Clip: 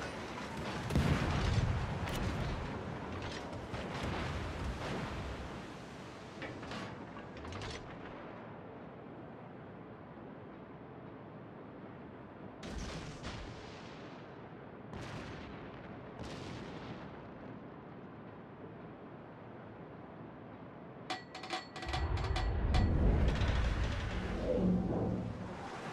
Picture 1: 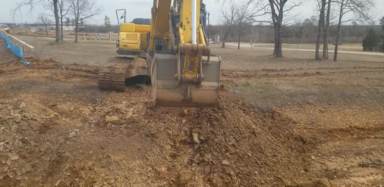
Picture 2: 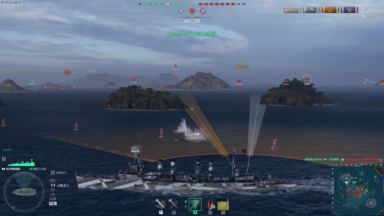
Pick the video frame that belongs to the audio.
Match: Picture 2